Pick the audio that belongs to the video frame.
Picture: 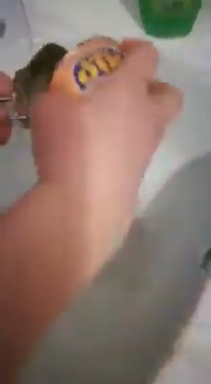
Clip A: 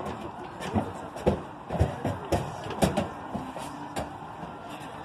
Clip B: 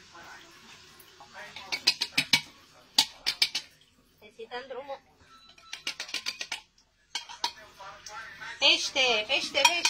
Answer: B